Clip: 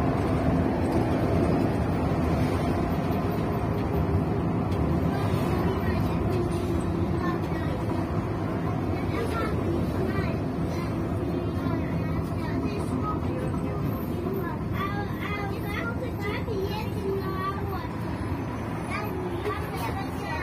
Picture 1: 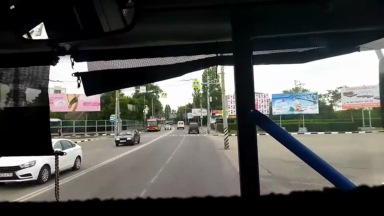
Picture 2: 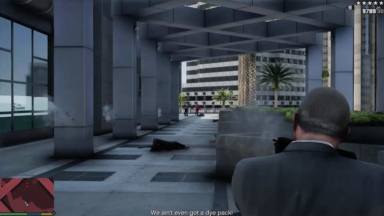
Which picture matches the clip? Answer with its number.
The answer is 1